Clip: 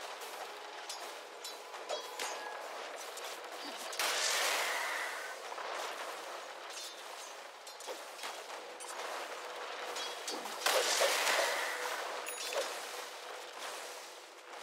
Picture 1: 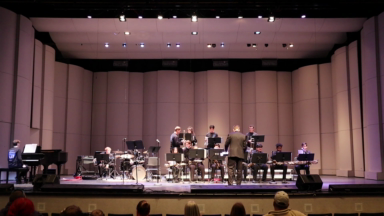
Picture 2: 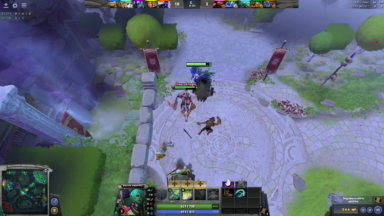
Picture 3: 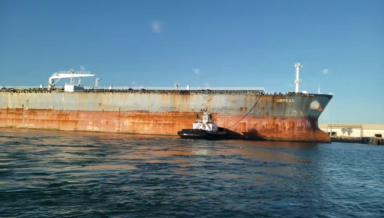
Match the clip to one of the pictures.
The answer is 2